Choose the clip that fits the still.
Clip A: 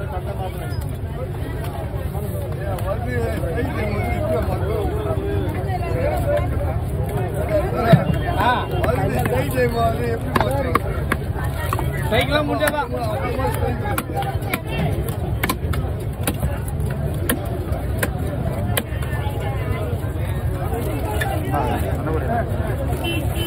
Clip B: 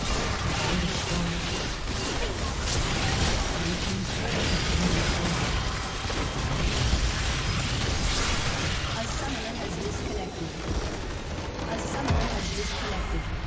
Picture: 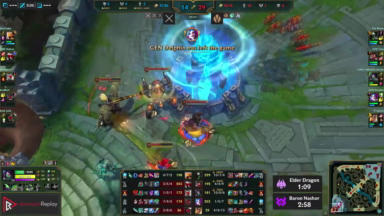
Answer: B